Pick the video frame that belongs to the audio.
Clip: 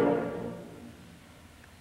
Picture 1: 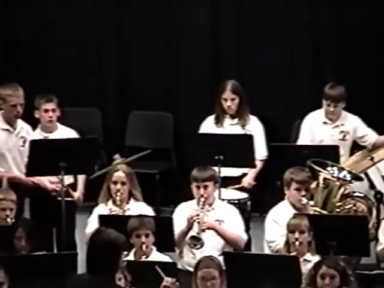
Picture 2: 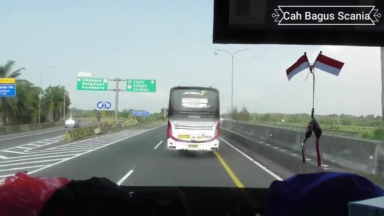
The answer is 1